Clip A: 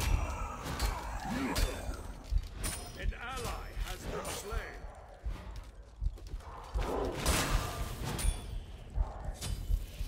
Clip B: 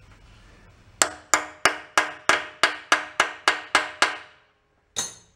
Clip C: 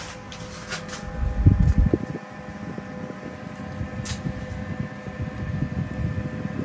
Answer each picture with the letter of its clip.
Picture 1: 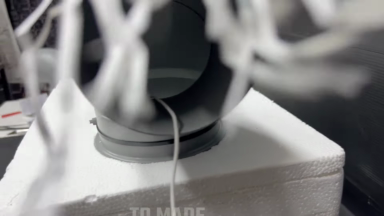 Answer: C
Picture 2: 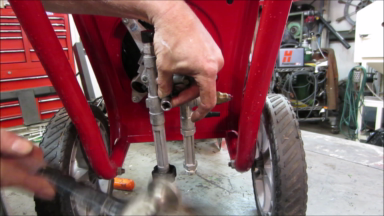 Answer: B